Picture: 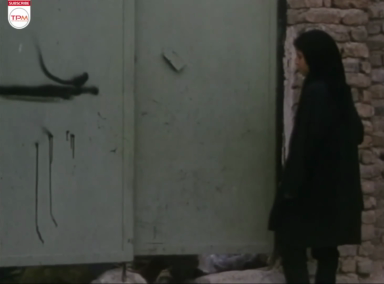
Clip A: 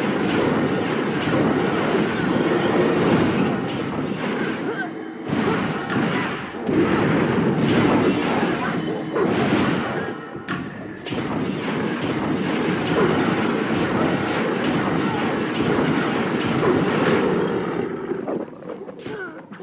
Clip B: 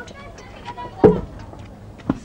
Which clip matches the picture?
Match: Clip B